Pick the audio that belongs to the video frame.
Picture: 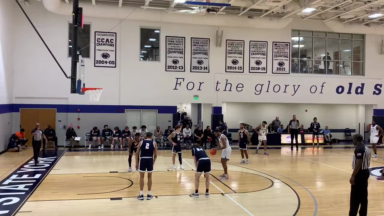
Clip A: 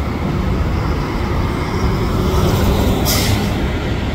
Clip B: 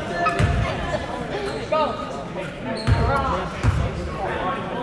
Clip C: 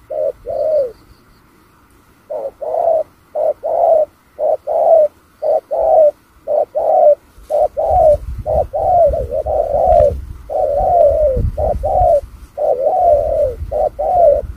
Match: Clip B